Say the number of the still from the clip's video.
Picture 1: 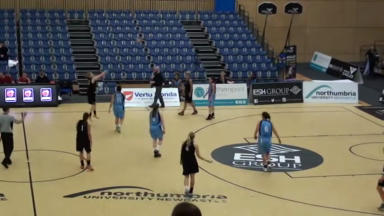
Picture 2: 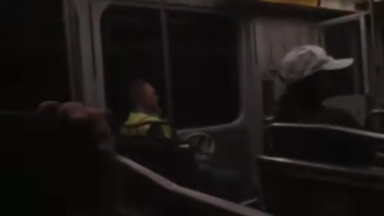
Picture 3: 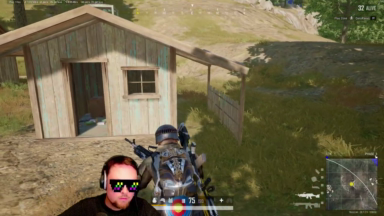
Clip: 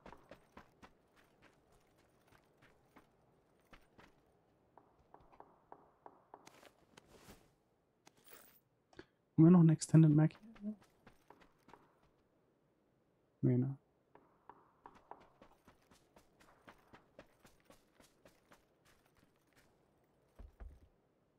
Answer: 3